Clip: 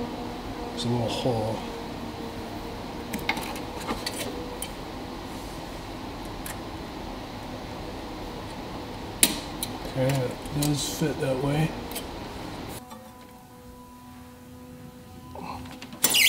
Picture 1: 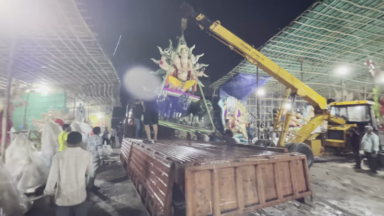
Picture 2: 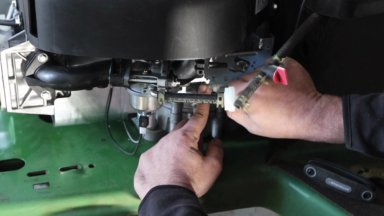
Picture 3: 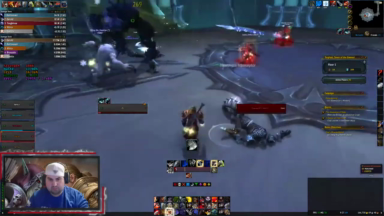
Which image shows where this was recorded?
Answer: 2